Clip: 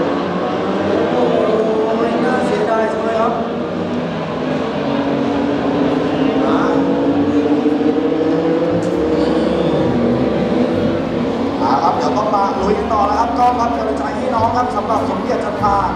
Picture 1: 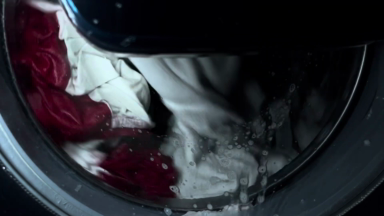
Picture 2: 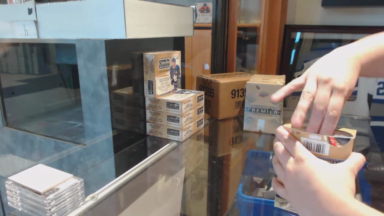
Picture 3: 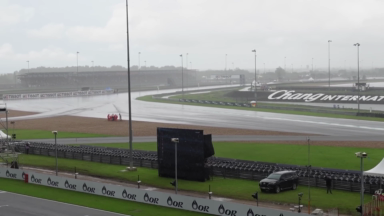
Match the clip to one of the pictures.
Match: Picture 3